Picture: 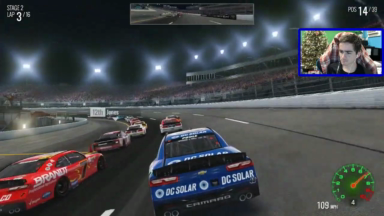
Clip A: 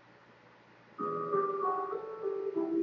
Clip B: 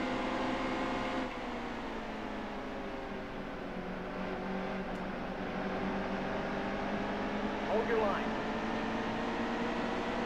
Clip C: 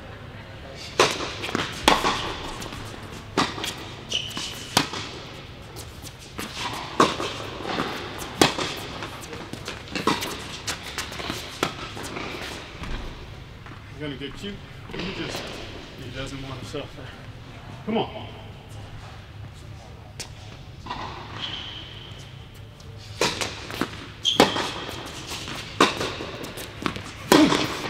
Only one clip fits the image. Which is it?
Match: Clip B